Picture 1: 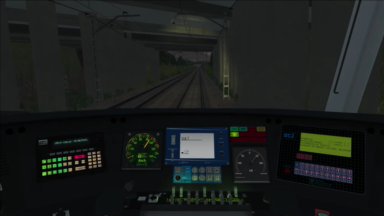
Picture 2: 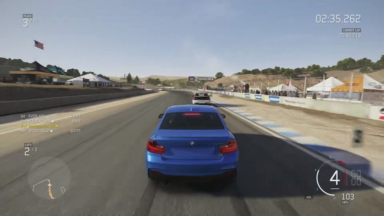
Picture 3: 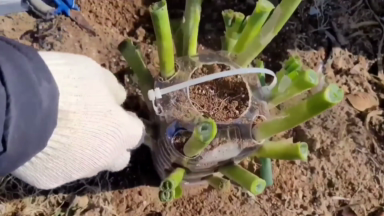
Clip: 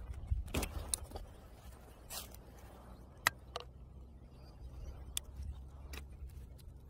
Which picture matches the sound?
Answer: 3